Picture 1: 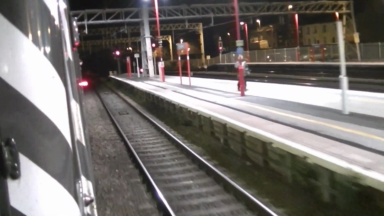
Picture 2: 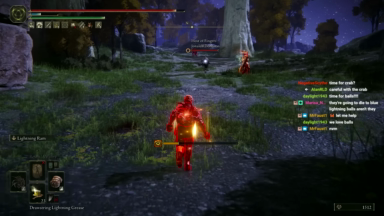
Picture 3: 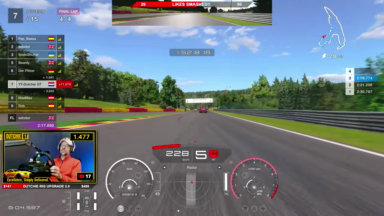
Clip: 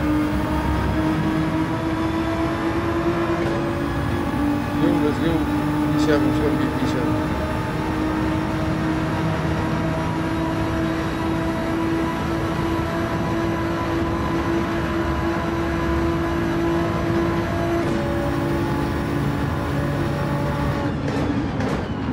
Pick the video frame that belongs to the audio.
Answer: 3